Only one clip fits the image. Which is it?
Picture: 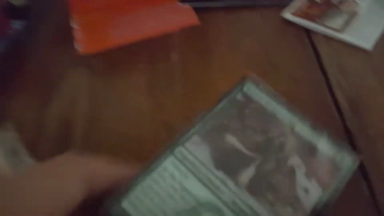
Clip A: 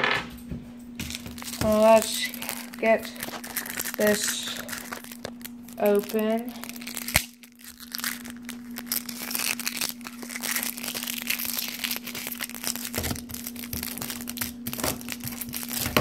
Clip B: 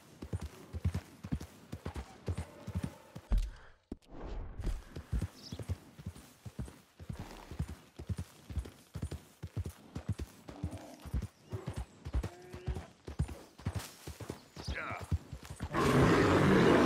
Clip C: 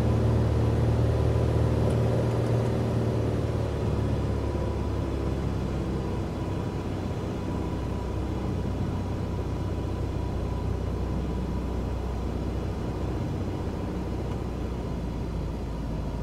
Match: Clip A